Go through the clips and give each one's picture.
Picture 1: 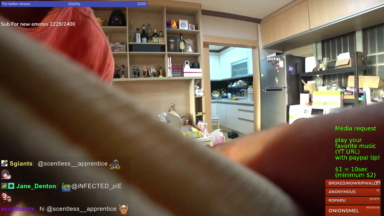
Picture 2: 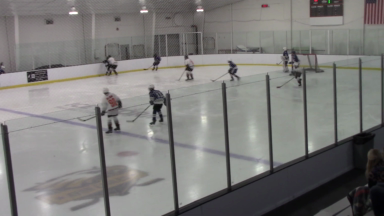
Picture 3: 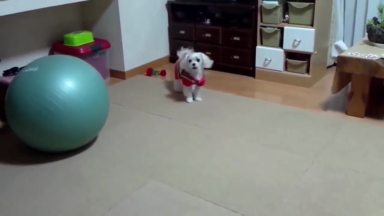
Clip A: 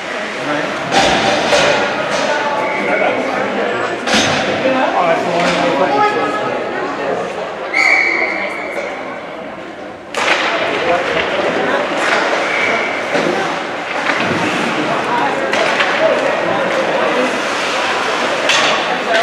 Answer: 2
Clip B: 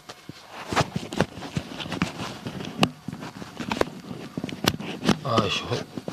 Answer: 1